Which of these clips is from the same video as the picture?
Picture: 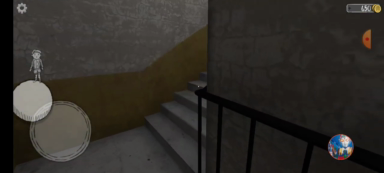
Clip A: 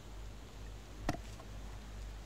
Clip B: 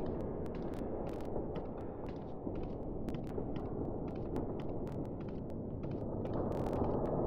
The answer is B